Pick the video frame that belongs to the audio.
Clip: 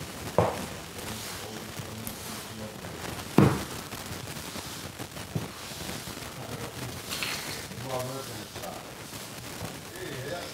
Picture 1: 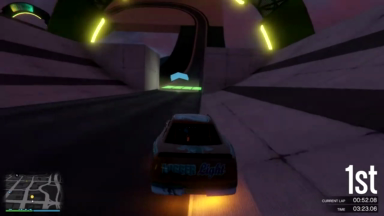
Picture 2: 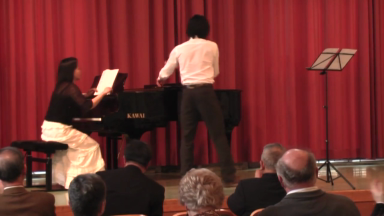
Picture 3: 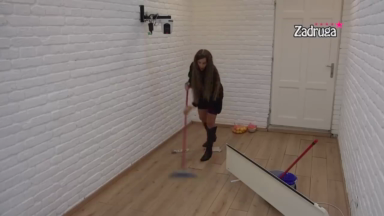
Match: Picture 3